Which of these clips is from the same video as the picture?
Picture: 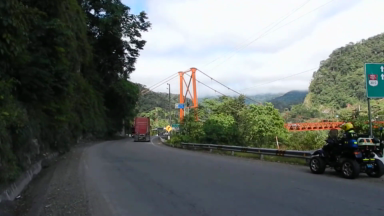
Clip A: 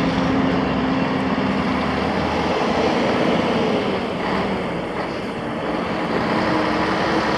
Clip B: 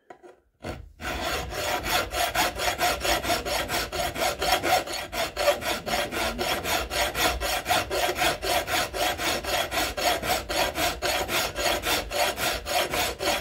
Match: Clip A